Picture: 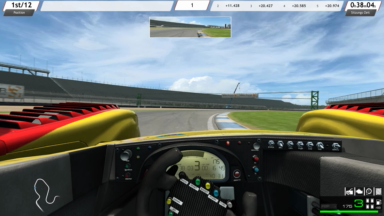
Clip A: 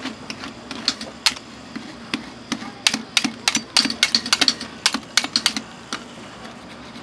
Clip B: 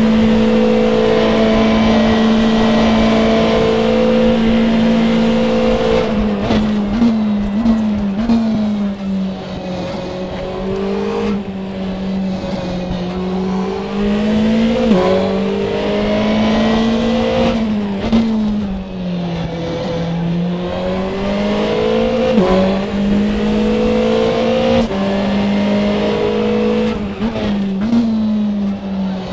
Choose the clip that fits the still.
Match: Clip B